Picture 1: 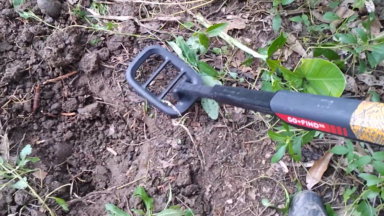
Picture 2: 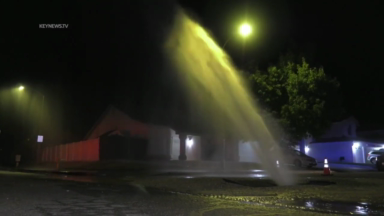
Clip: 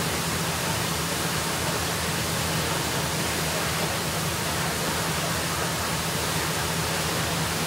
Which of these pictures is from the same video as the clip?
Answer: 2